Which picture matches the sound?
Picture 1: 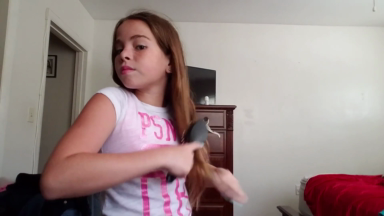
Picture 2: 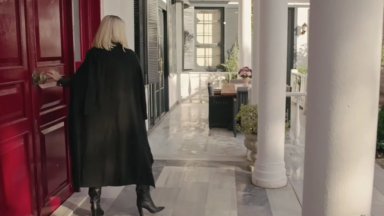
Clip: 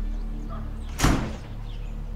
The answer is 2